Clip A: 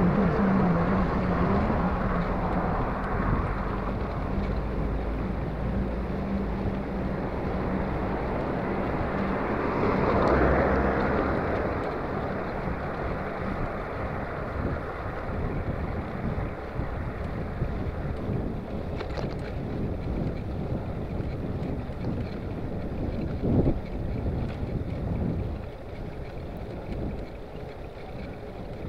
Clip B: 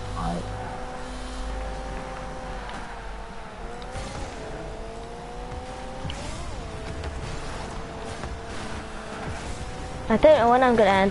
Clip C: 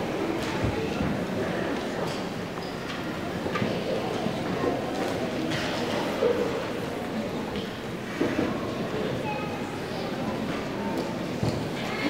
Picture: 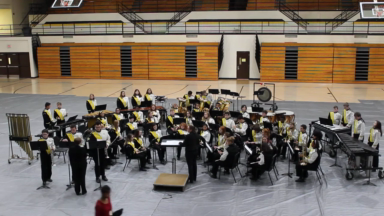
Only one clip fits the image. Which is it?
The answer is C